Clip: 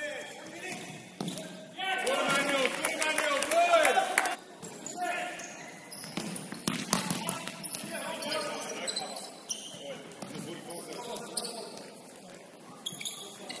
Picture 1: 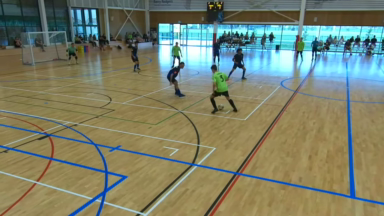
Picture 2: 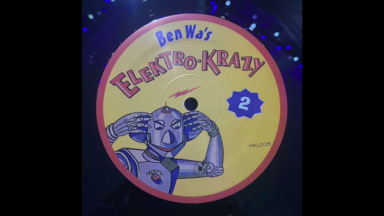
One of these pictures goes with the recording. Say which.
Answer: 1